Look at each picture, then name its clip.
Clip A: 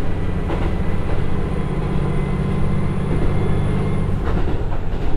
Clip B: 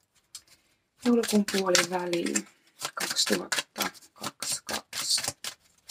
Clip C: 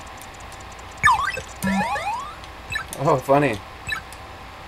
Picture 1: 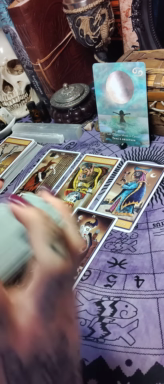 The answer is B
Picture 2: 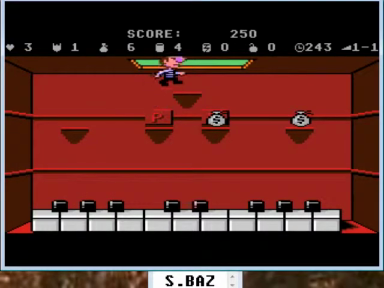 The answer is C